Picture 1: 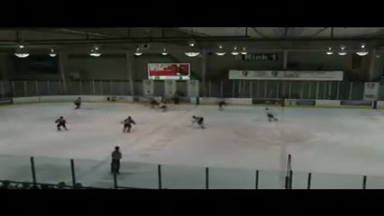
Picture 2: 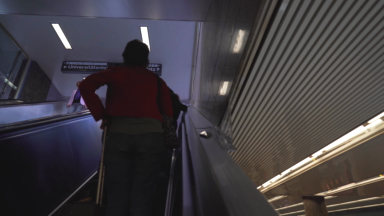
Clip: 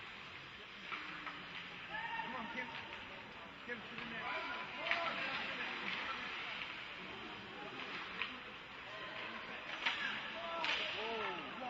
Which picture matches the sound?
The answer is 1